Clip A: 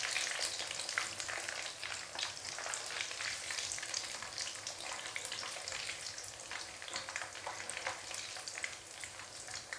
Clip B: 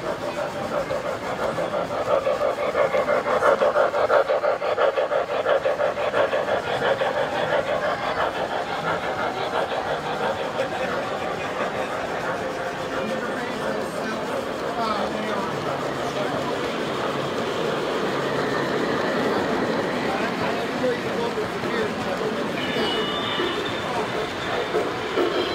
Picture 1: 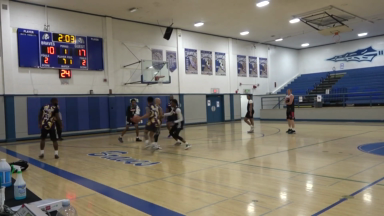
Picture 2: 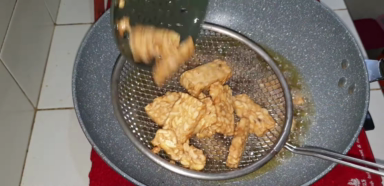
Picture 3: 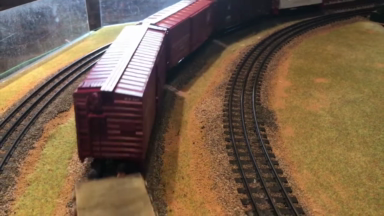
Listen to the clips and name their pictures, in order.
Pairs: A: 2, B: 3